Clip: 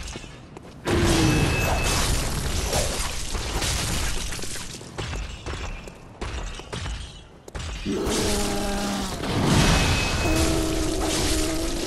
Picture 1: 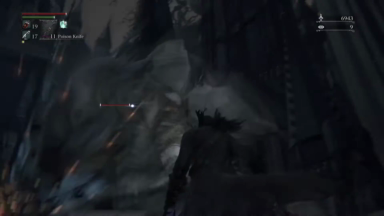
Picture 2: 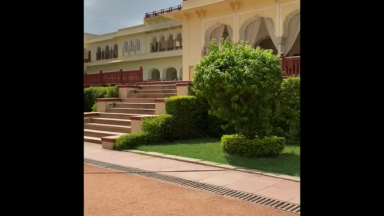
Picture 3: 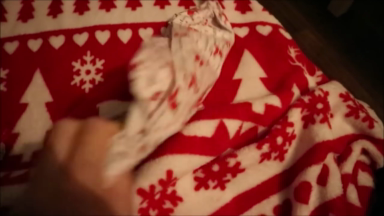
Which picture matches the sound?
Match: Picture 1